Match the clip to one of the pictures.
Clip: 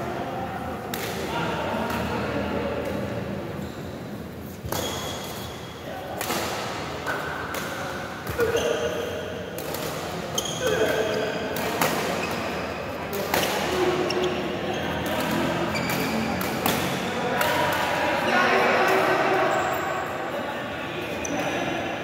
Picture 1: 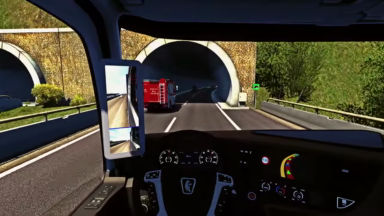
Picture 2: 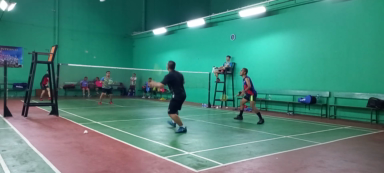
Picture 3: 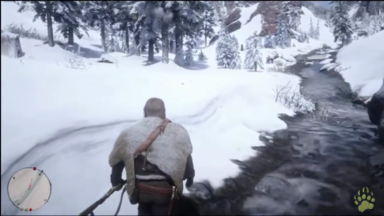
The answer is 2